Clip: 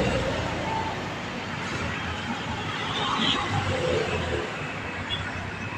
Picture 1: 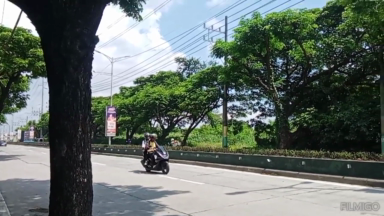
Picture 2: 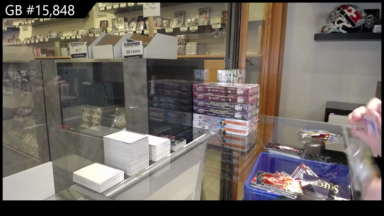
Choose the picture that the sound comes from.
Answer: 1